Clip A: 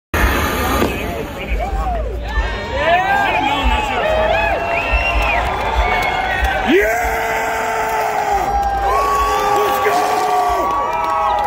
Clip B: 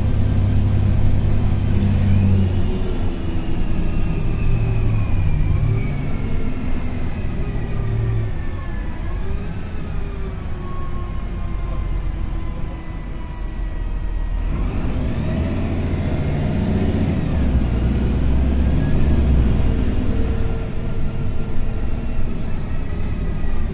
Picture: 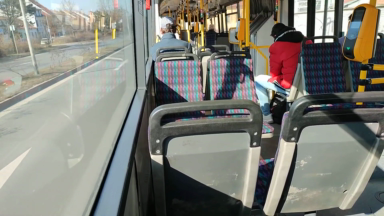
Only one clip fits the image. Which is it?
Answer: B